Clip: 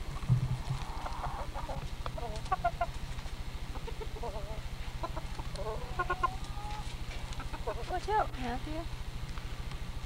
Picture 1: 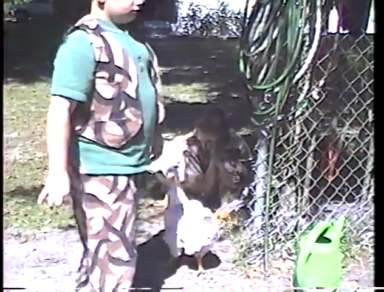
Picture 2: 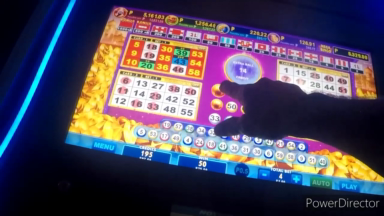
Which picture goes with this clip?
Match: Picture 1